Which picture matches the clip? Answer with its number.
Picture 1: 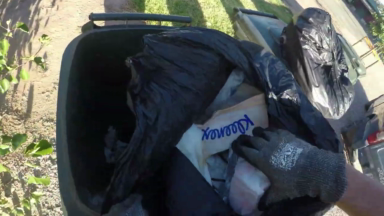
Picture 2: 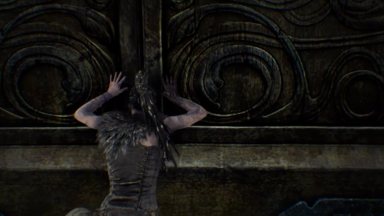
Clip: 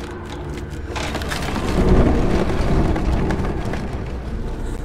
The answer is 2